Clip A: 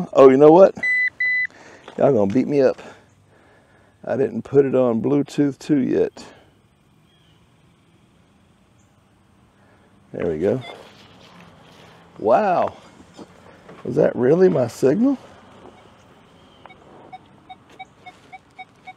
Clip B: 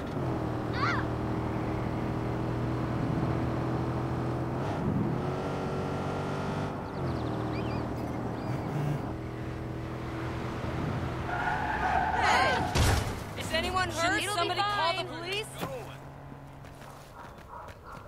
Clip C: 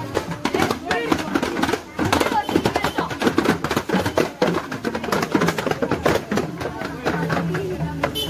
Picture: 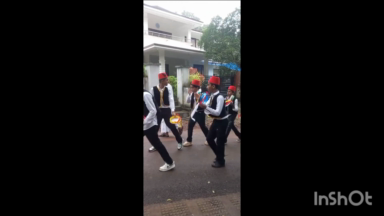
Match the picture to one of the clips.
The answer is C